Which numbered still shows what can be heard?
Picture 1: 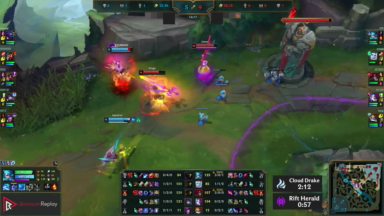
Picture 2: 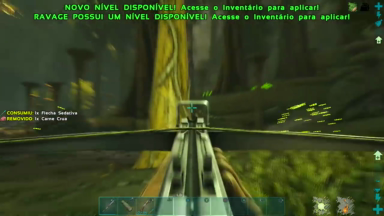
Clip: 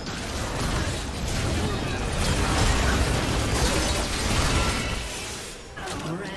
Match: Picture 1